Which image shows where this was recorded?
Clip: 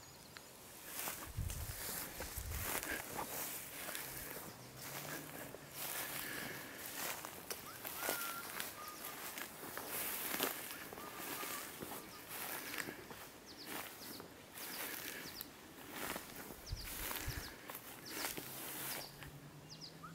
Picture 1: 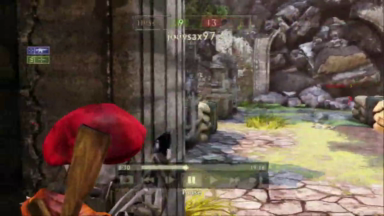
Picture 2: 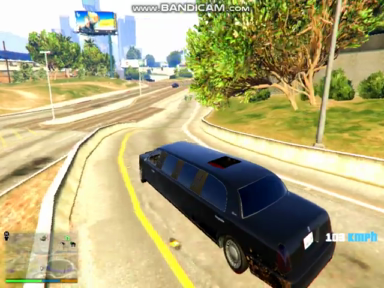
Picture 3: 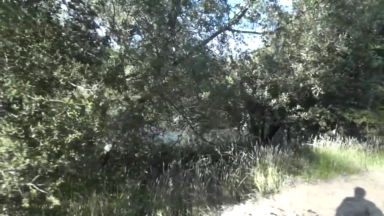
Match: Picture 3